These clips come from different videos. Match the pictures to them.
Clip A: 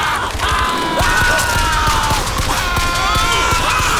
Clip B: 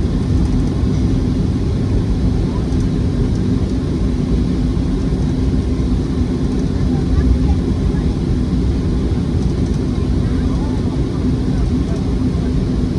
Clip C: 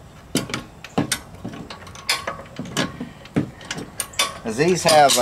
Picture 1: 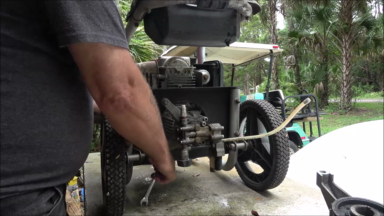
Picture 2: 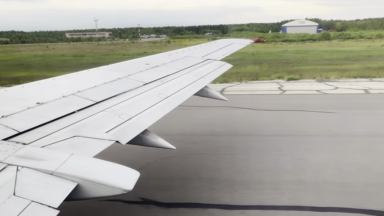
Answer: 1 C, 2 B